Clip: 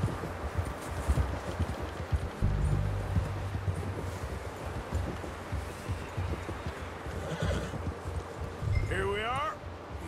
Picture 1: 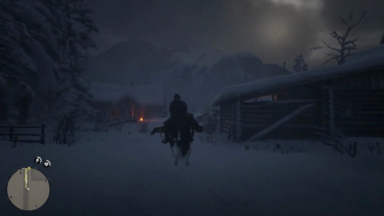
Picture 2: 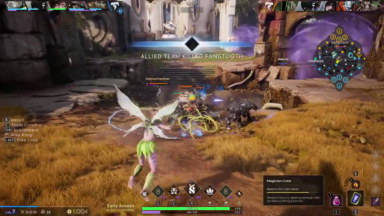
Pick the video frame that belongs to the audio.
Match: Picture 1